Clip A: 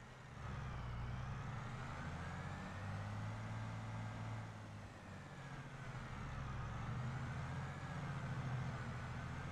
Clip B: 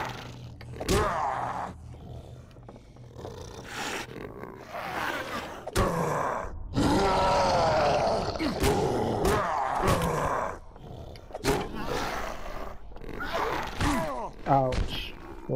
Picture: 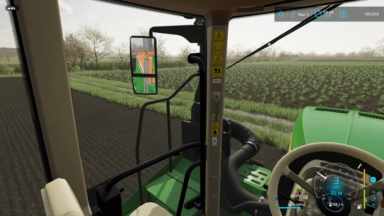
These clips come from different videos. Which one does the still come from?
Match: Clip A